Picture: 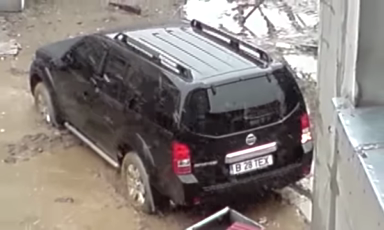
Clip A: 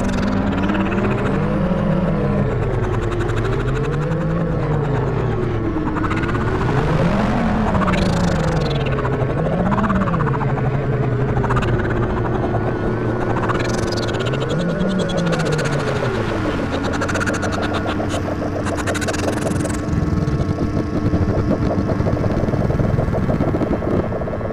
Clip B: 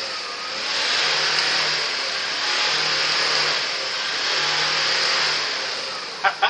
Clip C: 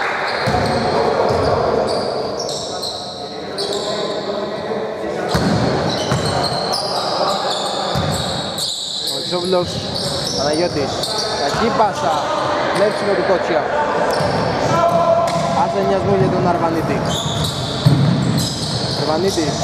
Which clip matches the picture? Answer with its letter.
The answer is B